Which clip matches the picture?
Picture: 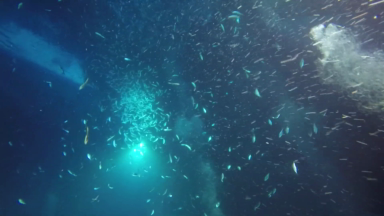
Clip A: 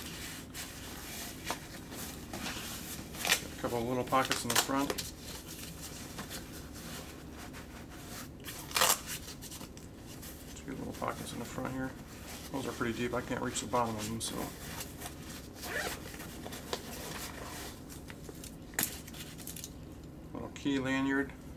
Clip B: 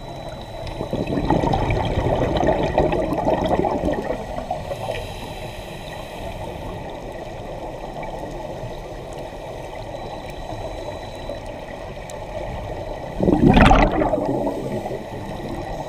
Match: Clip B